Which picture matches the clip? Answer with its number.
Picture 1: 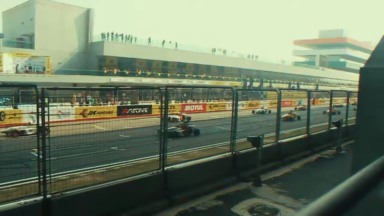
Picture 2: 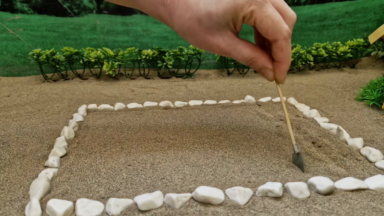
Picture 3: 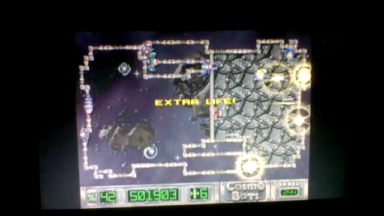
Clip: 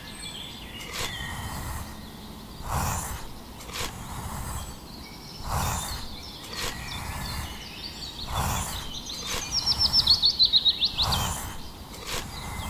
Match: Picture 2